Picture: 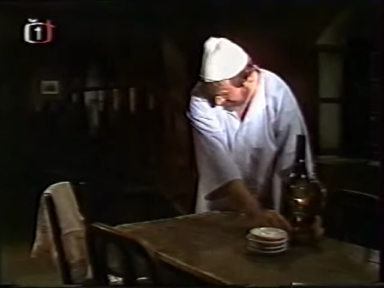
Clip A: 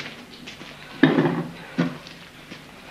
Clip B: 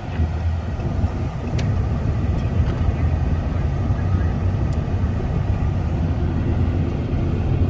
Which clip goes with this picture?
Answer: A